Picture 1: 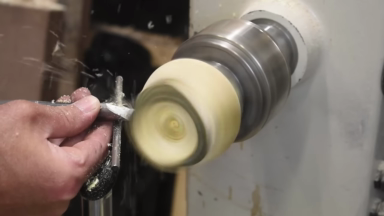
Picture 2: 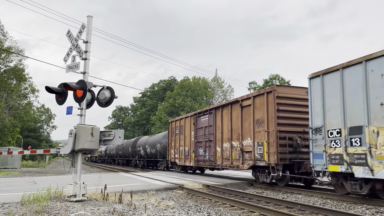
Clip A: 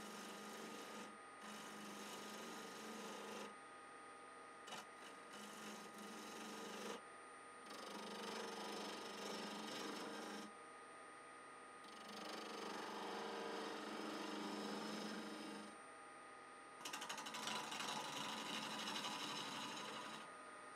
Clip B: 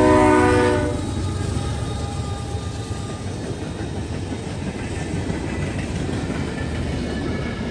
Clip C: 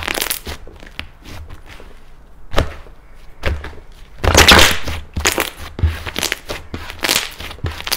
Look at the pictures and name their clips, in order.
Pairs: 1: A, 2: B